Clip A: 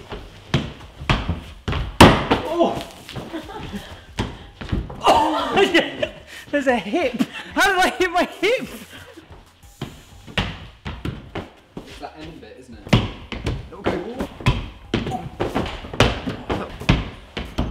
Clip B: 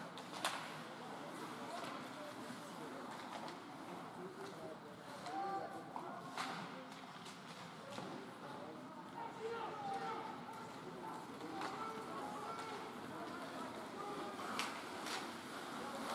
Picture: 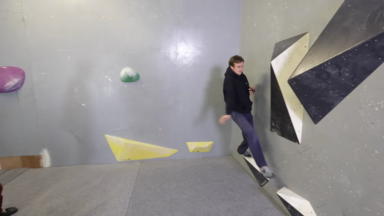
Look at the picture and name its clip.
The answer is A